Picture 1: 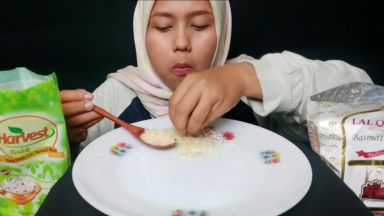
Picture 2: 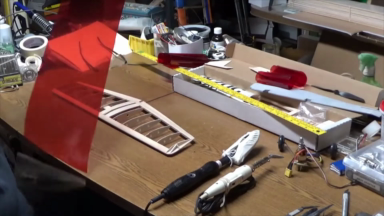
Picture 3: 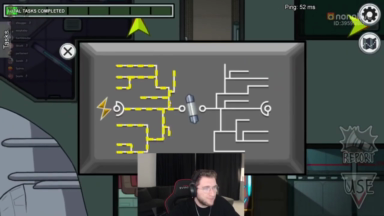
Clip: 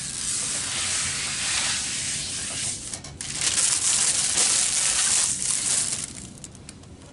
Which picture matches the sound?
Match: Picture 2